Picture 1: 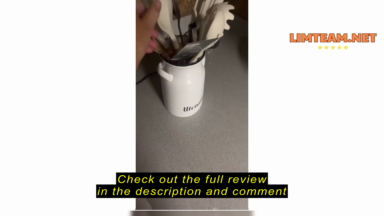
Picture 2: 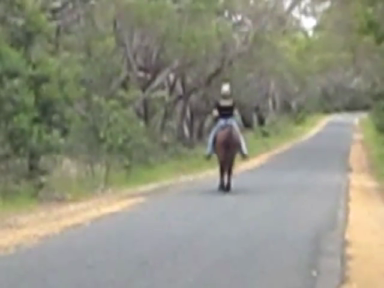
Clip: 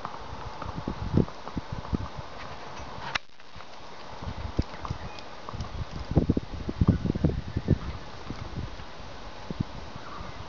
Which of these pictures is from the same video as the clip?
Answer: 2